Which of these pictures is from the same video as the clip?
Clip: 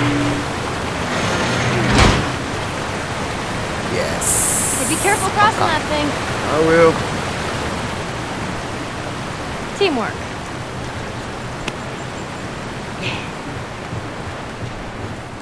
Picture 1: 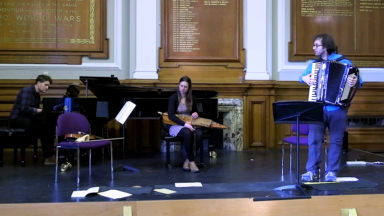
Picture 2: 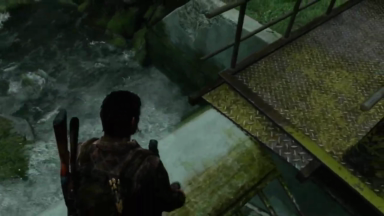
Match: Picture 2